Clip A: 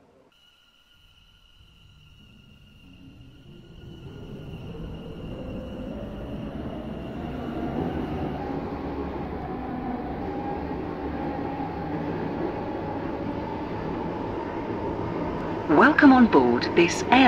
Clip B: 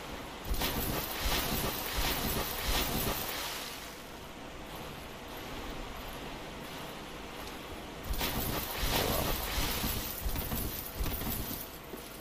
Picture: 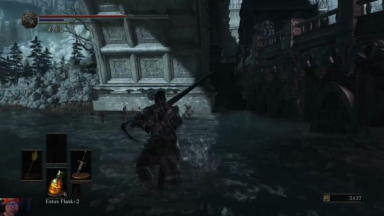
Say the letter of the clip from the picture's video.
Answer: B